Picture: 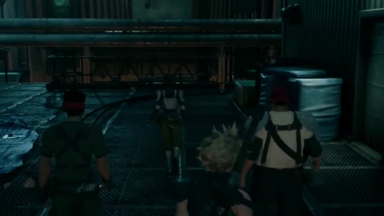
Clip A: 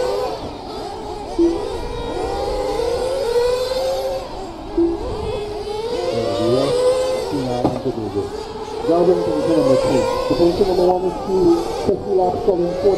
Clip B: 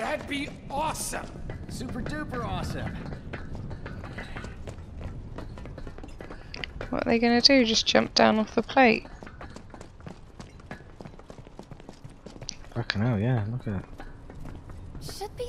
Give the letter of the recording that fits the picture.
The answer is B